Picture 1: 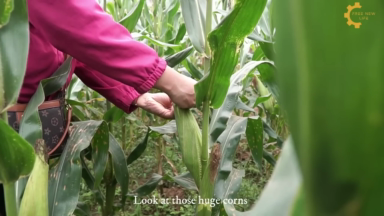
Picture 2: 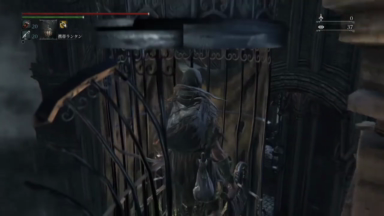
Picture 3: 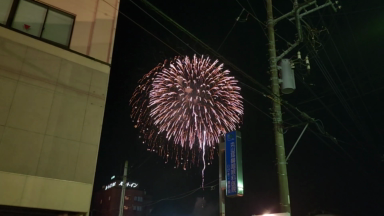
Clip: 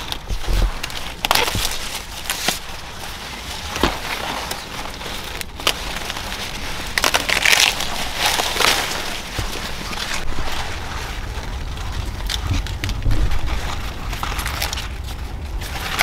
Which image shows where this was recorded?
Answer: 1